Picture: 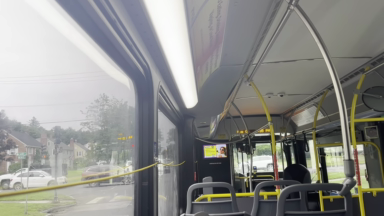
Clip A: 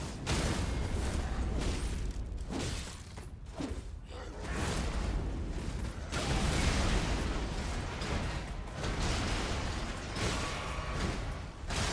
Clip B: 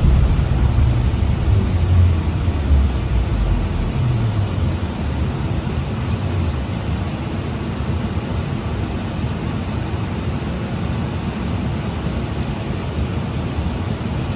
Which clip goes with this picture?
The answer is B